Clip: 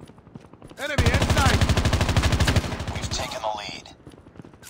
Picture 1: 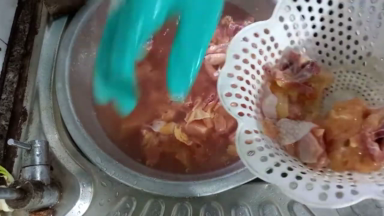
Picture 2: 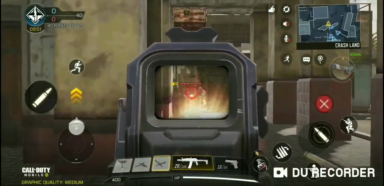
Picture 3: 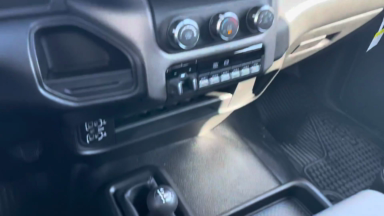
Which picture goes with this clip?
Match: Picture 2